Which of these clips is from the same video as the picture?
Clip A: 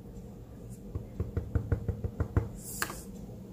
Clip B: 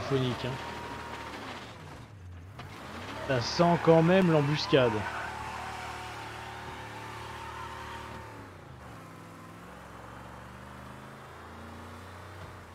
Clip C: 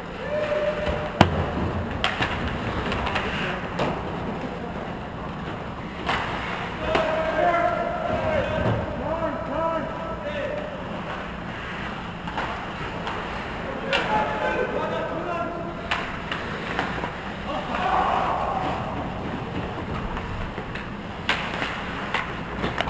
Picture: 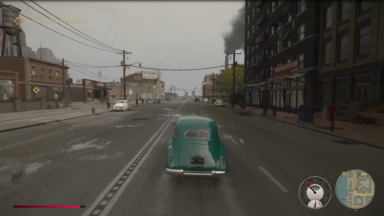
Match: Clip B